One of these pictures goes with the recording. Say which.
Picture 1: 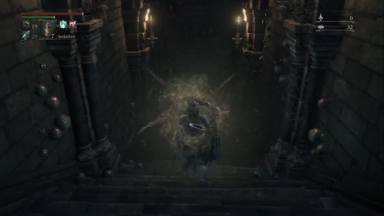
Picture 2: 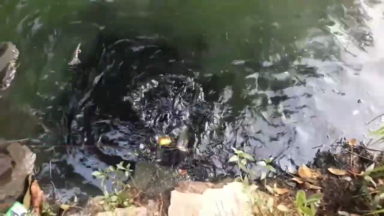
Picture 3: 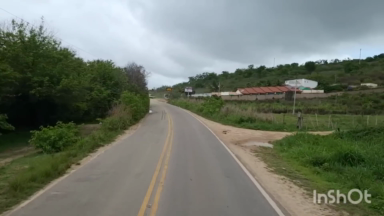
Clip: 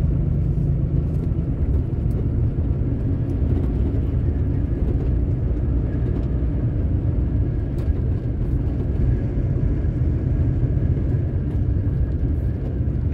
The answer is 3